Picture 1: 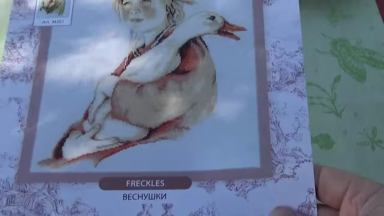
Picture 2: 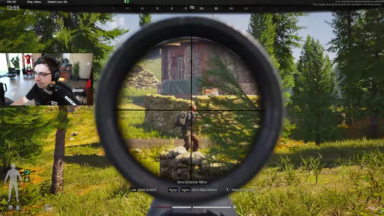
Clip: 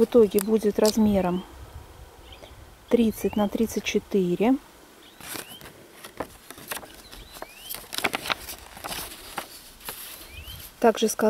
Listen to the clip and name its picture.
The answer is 1